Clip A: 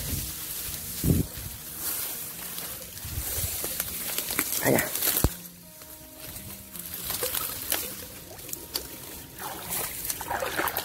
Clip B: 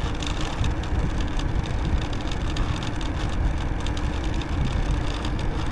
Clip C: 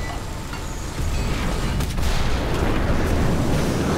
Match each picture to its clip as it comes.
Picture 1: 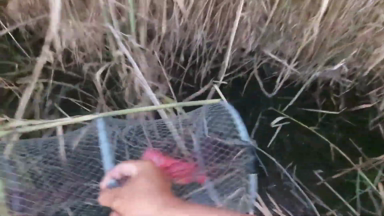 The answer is A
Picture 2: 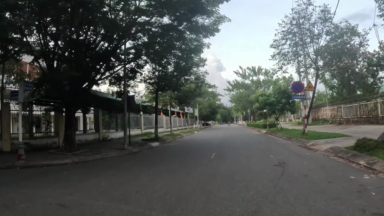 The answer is B